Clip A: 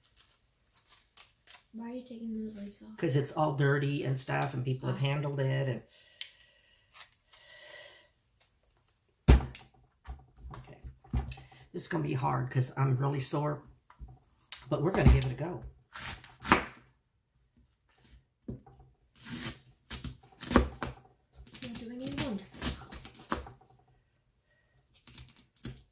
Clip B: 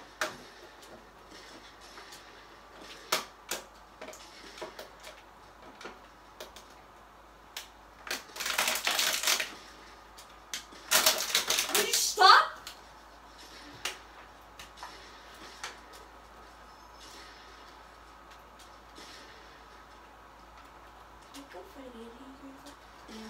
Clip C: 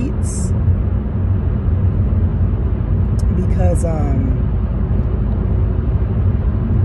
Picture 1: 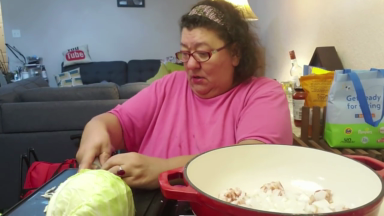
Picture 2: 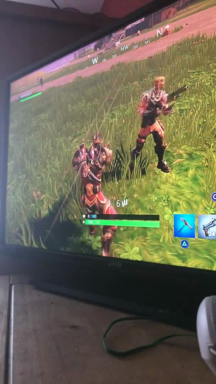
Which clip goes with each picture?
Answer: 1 A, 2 B